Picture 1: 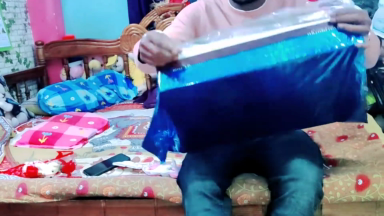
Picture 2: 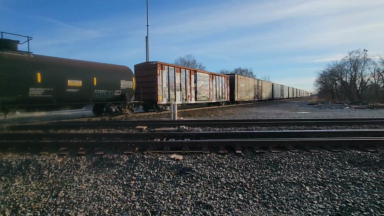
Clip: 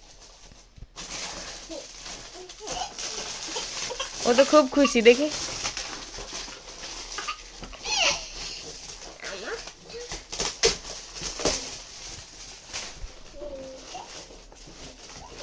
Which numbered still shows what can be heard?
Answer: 1